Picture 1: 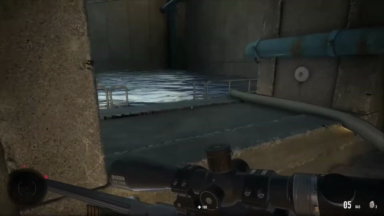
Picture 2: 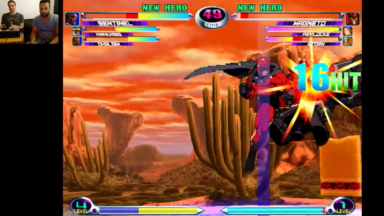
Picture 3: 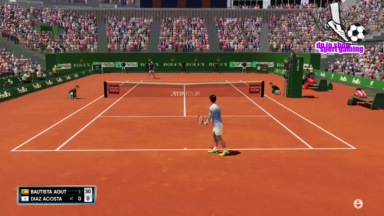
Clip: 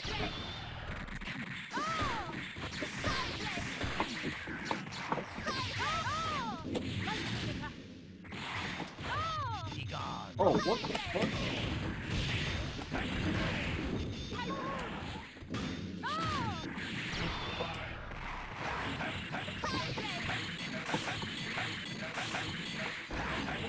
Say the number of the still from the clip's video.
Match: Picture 2